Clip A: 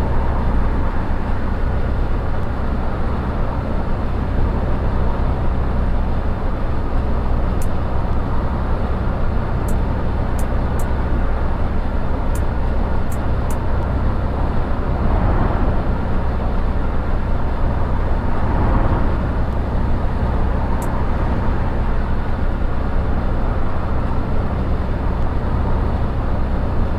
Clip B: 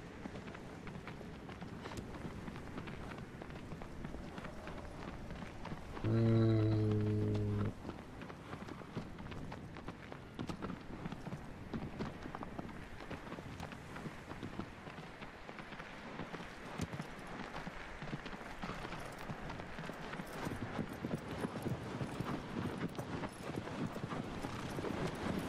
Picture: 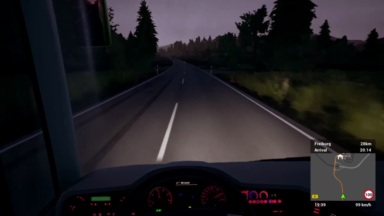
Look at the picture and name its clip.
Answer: A